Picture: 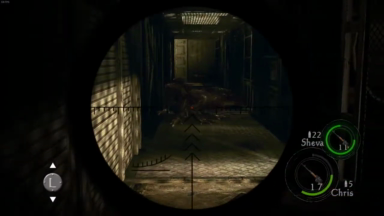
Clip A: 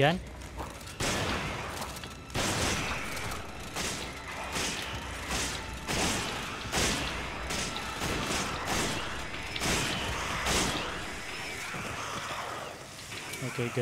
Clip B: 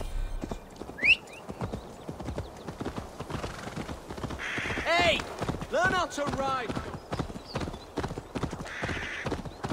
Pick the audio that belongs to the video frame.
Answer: A